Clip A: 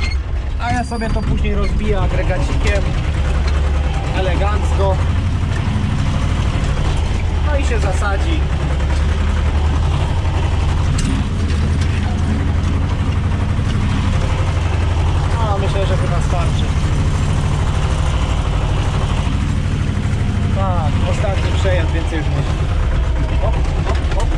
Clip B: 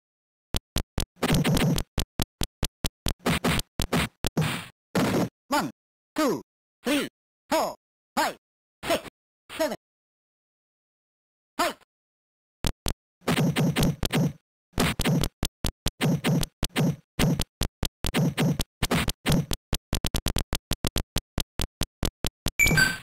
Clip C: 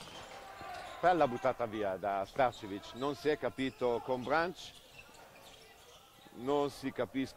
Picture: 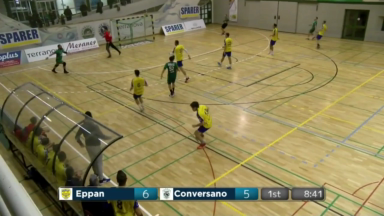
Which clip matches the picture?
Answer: C